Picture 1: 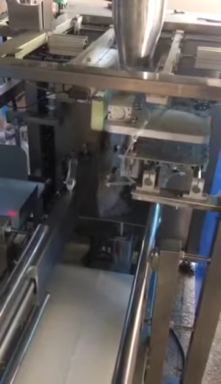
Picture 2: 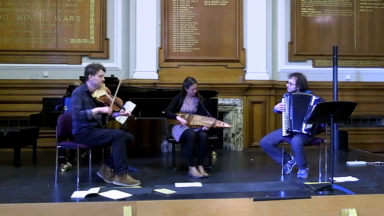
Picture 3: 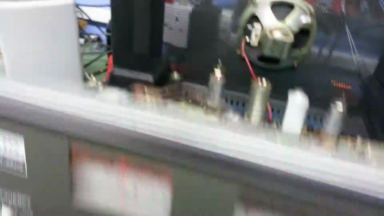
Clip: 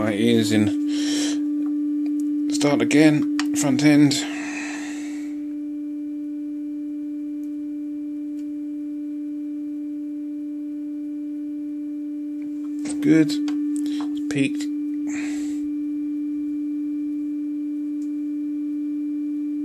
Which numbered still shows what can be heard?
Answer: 3